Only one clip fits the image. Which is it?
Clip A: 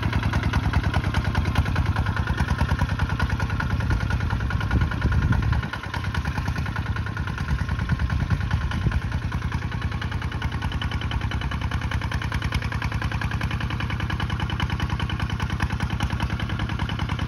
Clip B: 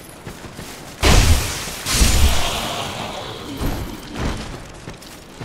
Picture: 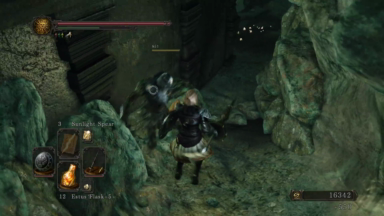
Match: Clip B